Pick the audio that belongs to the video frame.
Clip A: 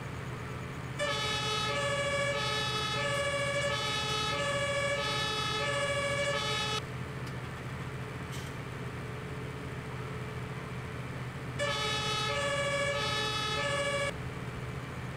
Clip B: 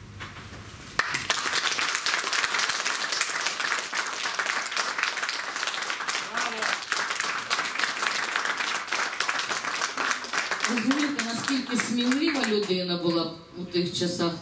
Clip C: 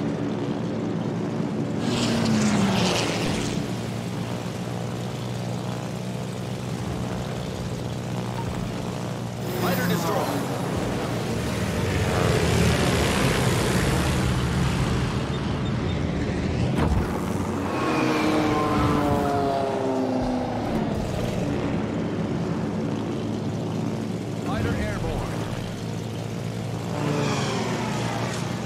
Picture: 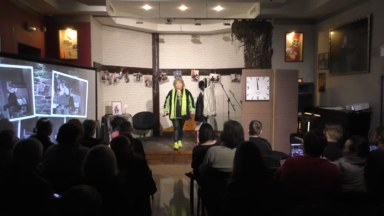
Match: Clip B